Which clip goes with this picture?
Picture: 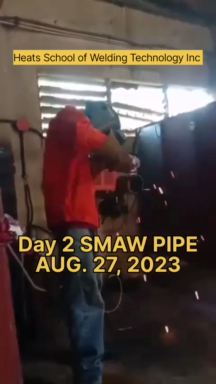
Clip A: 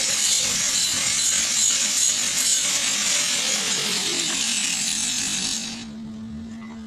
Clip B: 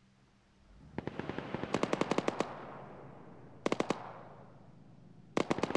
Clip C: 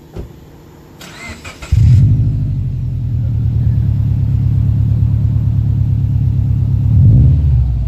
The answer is A